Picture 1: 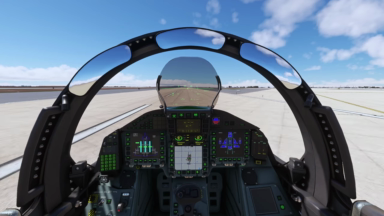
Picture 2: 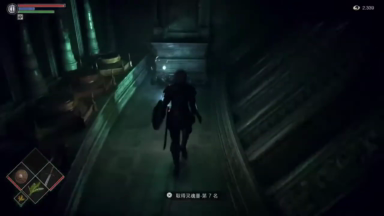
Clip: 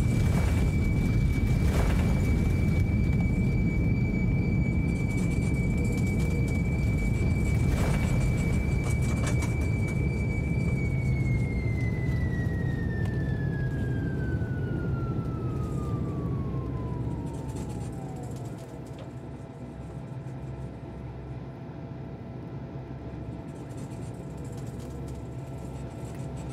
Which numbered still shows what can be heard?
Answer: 1